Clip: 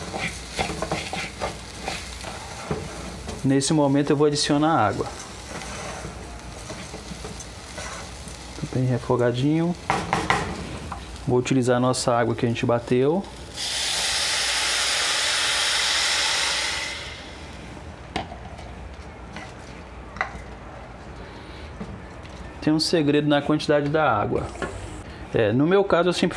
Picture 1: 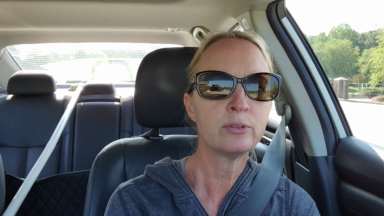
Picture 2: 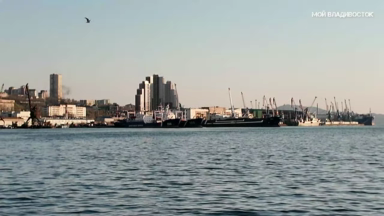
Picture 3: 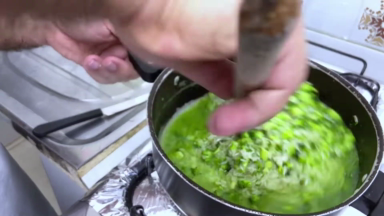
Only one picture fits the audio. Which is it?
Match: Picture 3